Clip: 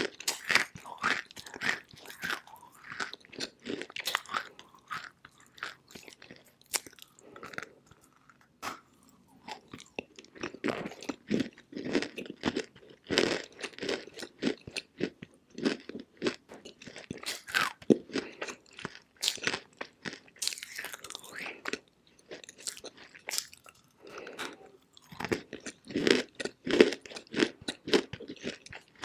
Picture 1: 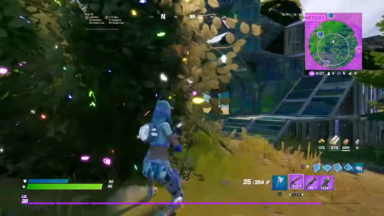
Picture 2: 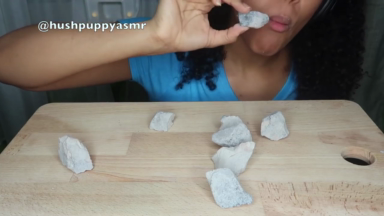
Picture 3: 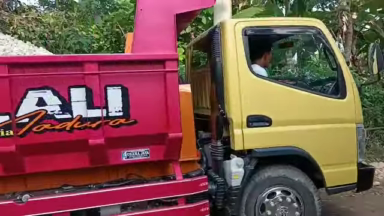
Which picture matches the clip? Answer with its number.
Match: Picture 2